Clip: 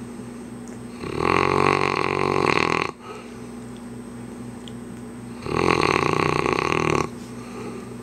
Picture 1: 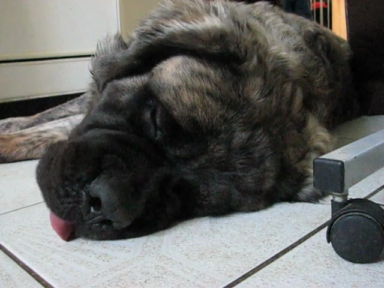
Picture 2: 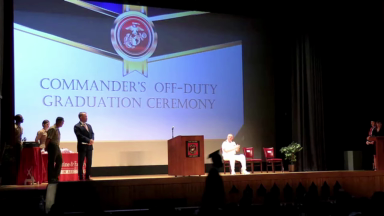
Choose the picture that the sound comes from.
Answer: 1